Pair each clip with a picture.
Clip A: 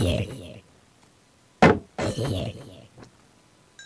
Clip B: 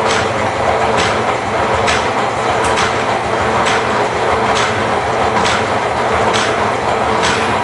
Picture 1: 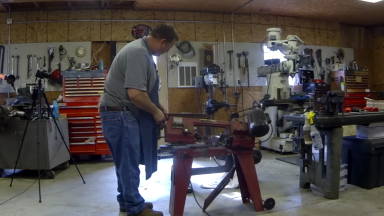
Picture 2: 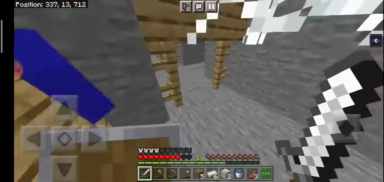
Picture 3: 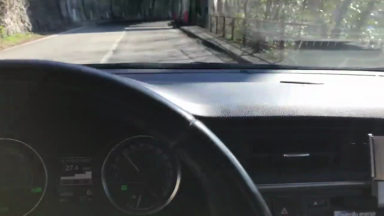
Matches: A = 2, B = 1